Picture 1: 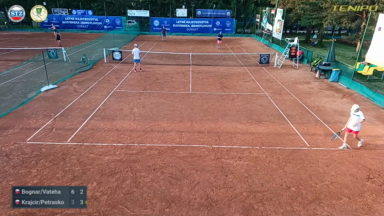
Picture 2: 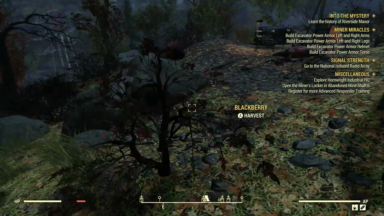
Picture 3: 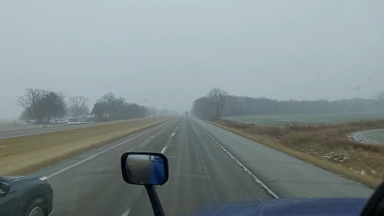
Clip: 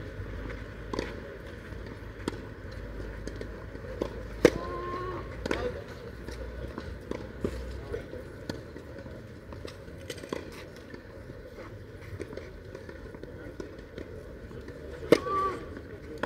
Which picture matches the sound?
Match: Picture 1